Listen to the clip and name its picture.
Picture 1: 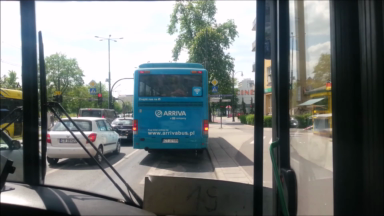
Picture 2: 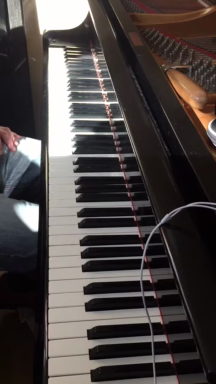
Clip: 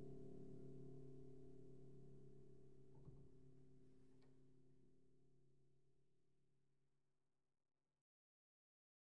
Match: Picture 2